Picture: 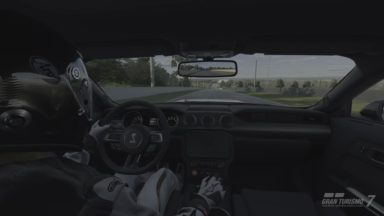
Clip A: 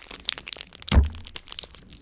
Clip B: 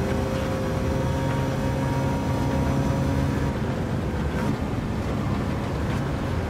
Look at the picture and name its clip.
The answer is B